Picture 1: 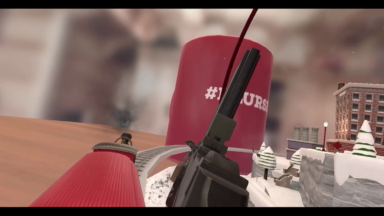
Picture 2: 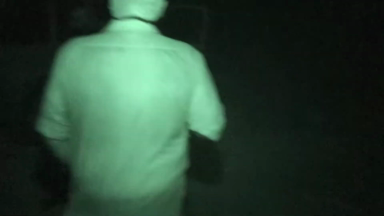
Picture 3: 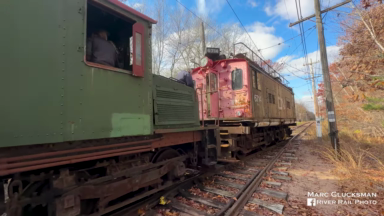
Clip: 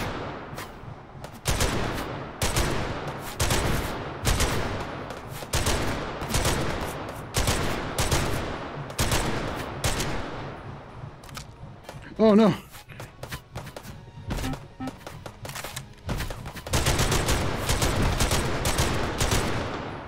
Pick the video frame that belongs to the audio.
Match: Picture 1